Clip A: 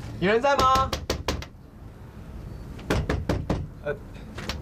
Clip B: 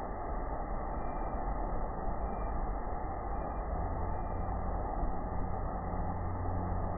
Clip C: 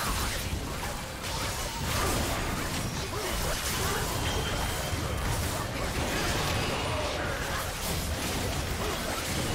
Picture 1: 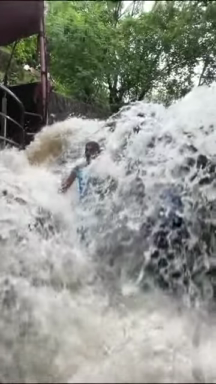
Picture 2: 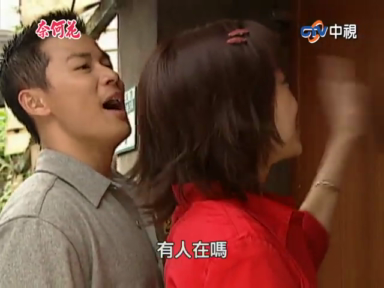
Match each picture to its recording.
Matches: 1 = B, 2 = A